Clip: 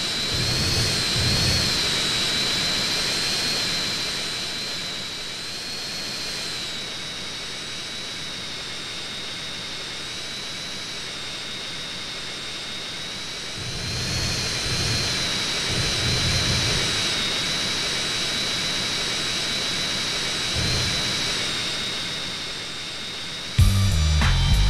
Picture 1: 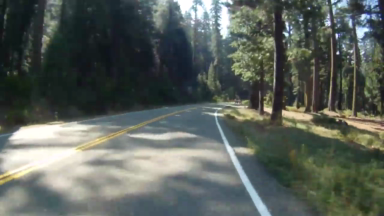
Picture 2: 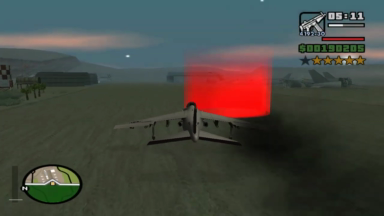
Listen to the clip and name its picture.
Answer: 2